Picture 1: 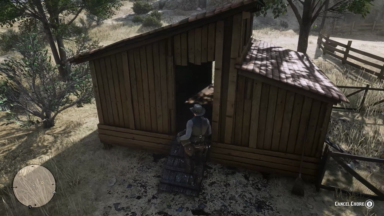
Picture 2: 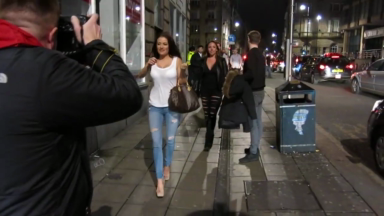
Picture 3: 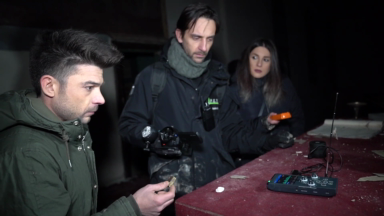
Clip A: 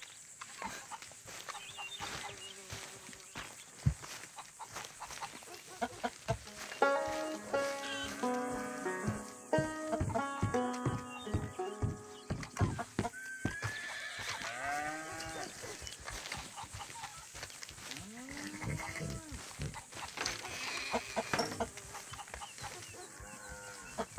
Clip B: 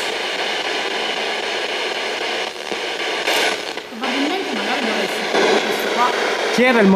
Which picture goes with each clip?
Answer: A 1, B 3